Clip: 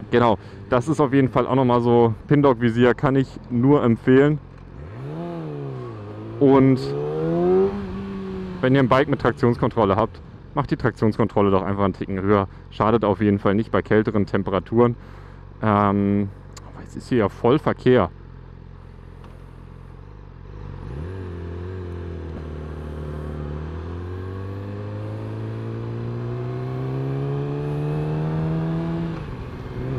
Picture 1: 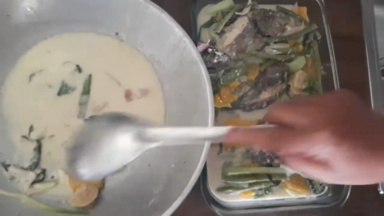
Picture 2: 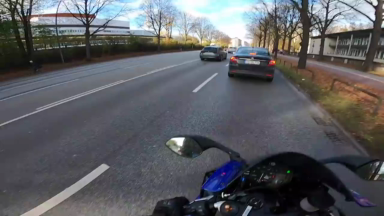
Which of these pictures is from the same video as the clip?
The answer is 2